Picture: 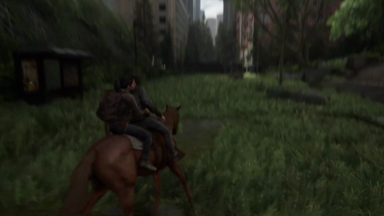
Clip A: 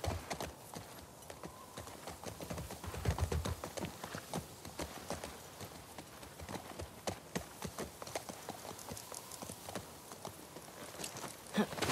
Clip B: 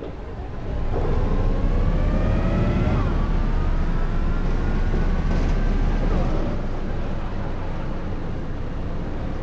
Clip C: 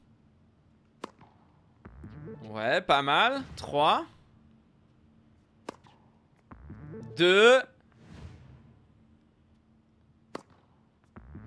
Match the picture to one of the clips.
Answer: A